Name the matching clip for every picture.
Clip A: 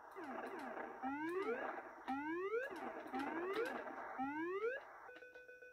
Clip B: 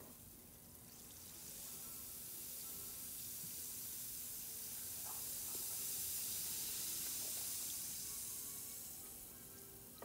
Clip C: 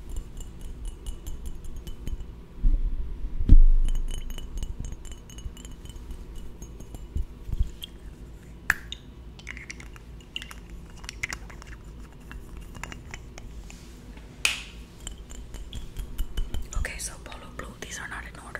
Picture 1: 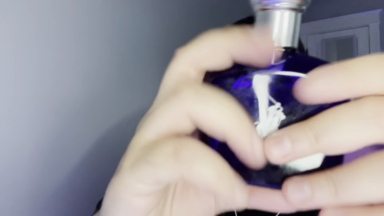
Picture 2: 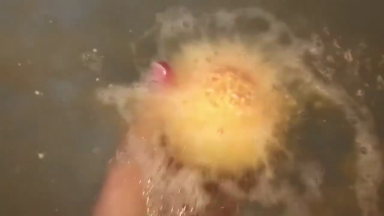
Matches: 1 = C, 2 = B